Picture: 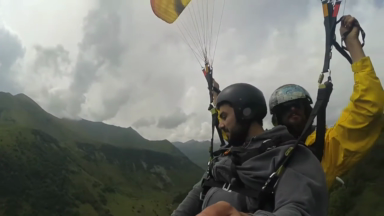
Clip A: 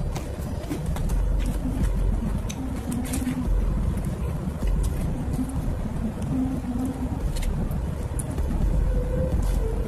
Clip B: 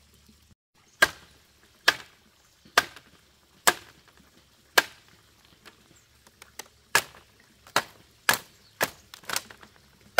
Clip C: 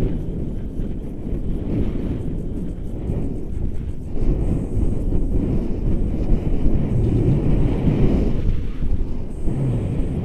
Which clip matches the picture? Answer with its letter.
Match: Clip C